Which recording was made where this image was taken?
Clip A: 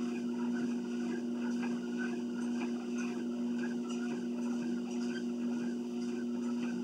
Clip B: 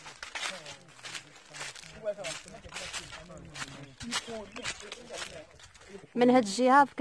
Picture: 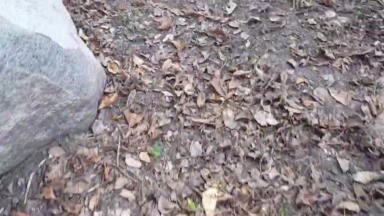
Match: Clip B